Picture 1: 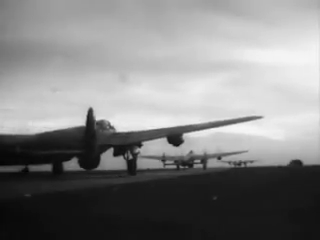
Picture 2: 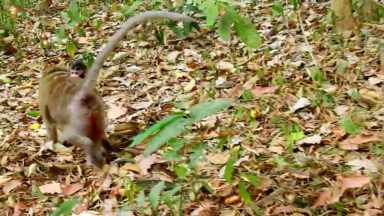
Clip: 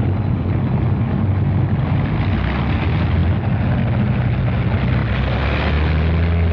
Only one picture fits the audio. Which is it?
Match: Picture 1